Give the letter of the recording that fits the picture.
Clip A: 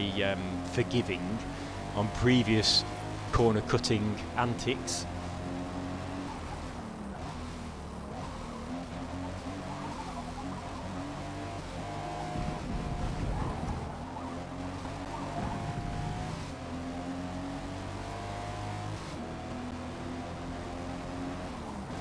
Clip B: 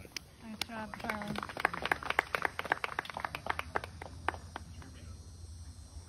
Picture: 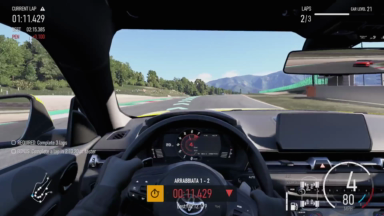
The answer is A